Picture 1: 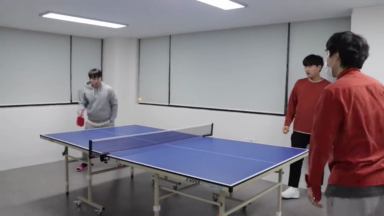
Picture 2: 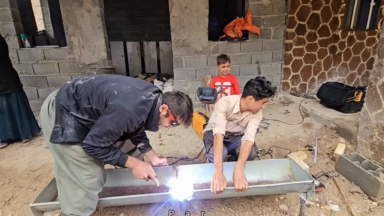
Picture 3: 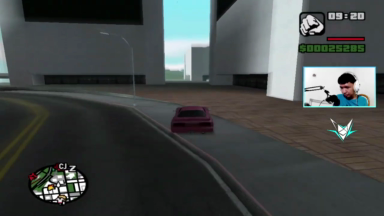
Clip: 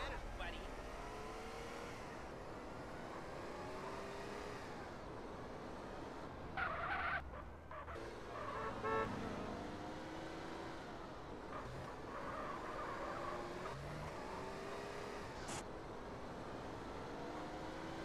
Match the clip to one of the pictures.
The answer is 3